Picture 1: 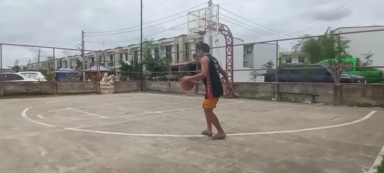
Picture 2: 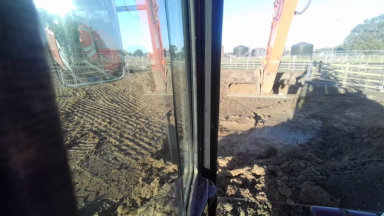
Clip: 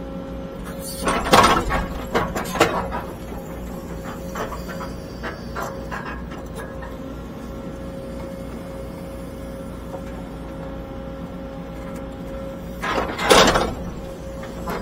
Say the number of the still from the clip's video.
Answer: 2